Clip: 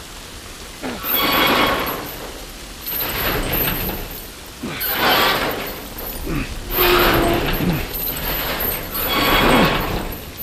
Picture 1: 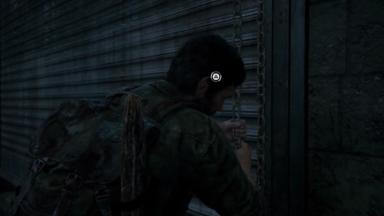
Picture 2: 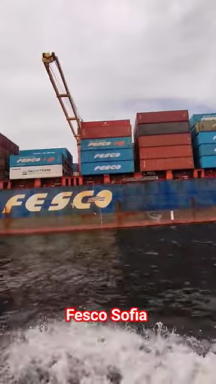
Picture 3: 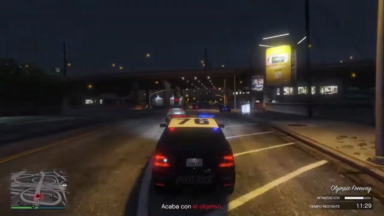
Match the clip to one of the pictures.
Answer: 1